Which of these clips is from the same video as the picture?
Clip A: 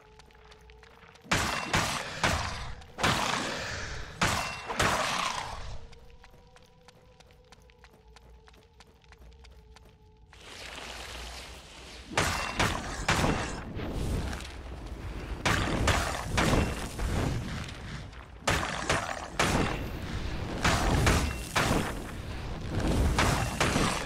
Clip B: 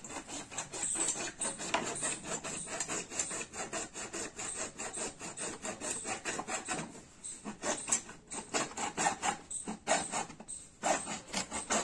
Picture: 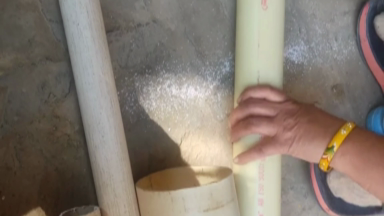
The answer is B